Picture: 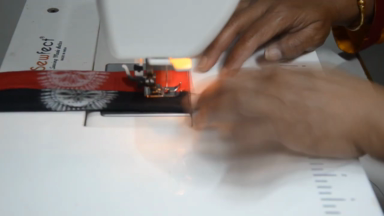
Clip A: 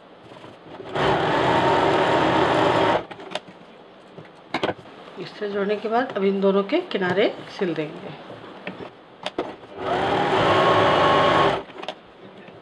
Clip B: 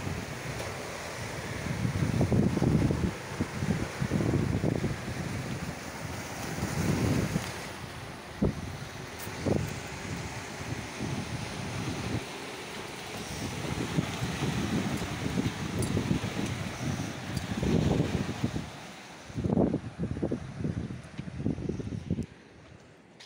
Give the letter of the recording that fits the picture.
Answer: A